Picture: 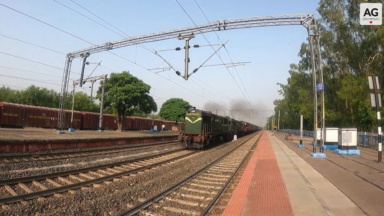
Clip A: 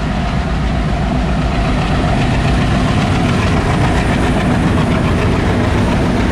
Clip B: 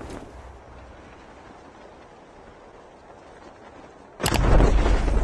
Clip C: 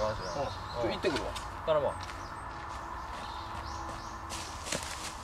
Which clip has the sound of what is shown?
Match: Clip A